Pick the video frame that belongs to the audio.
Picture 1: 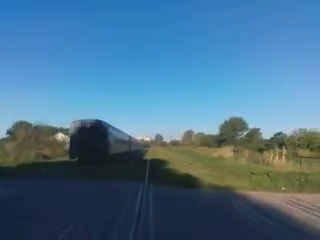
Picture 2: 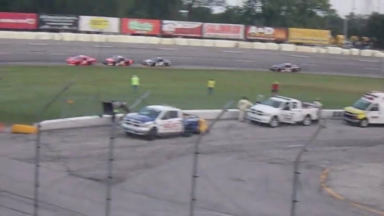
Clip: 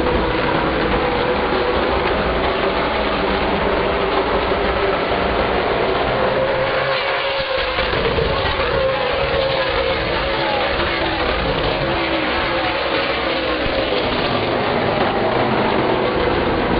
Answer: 2